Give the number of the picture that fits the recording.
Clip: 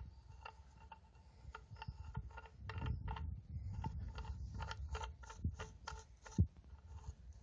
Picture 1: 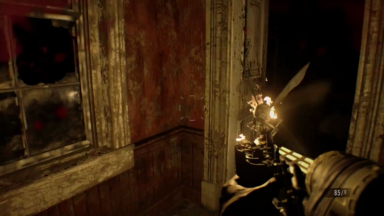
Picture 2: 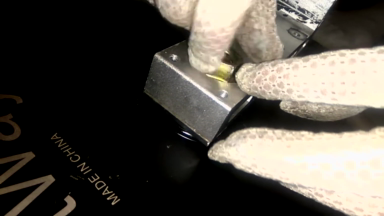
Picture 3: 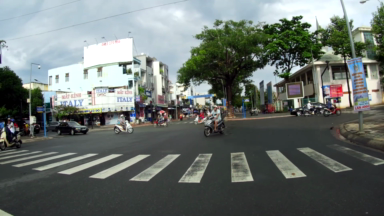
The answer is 2